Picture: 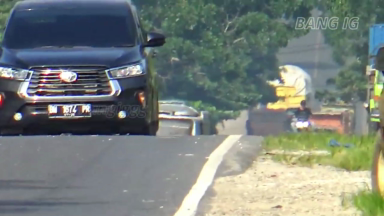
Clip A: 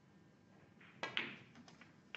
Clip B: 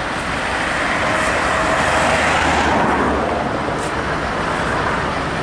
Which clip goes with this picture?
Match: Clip B